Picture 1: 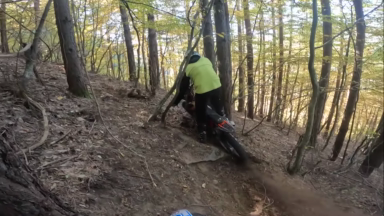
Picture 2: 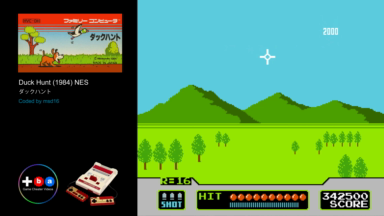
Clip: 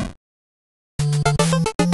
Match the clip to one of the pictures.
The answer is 2